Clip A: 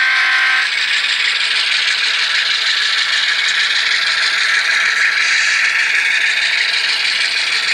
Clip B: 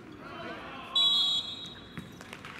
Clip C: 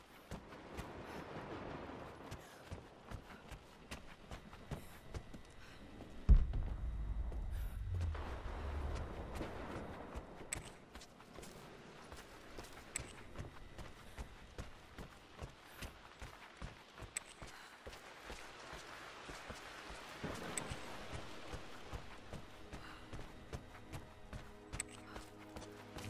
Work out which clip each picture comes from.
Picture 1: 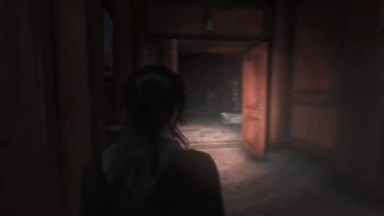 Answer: C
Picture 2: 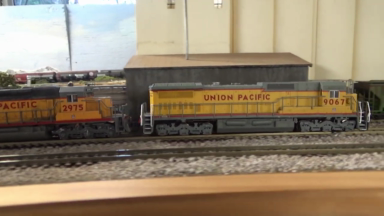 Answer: A